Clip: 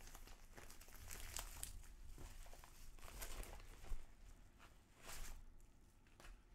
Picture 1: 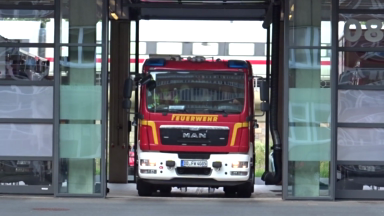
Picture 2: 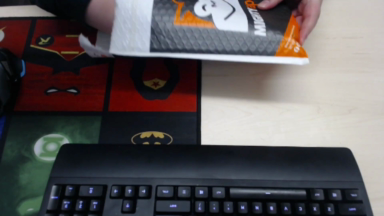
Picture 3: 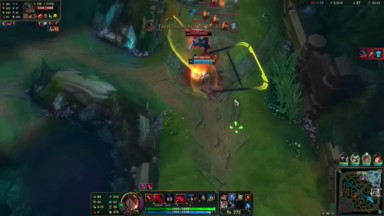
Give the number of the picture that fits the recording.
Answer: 2